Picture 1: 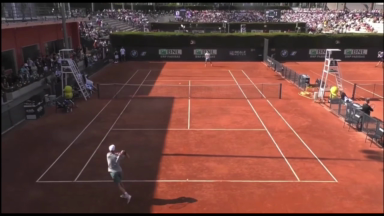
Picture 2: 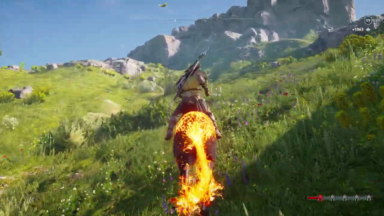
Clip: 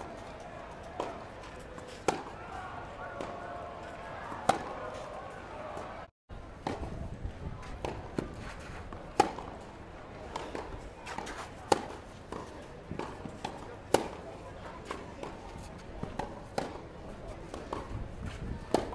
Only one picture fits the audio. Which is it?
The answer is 1